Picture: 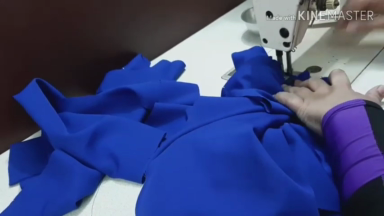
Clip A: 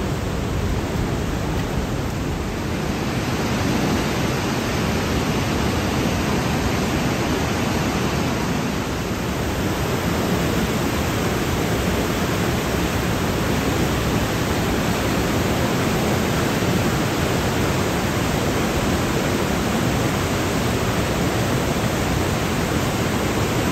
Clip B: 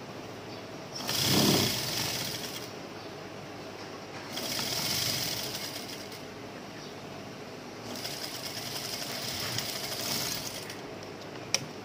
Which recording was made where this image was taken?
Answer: B